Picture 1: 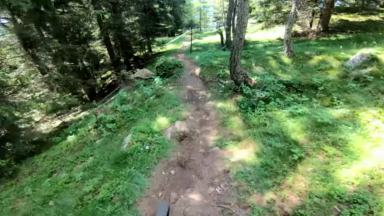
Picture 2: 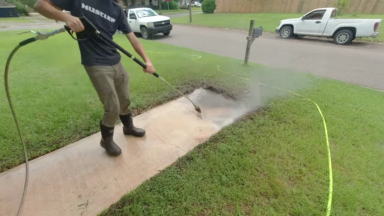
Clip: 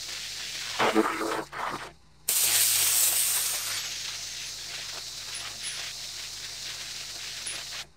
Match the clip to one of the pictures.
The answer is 2